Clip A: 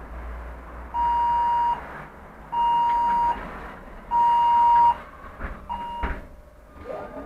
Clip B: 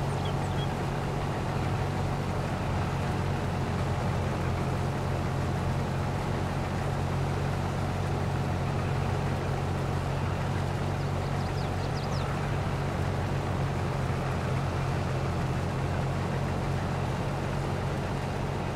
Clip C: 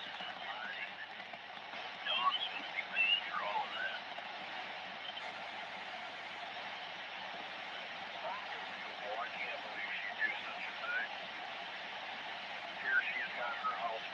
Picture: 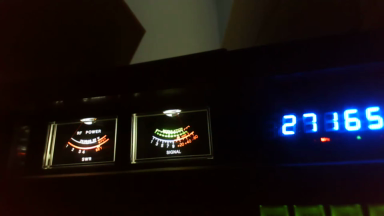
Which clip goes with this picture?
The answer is C